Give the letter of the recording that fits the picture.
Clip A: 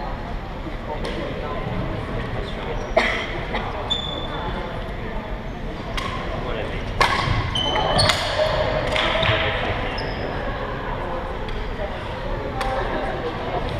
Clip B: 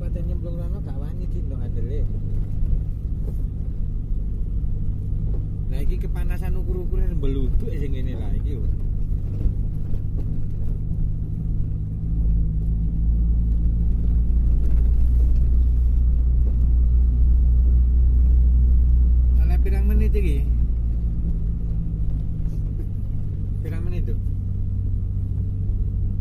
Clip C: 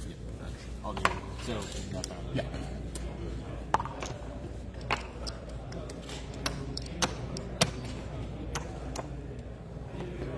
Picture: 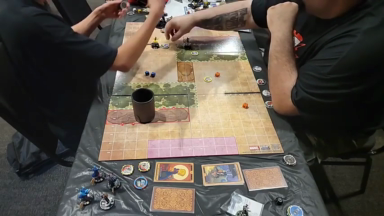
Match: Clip C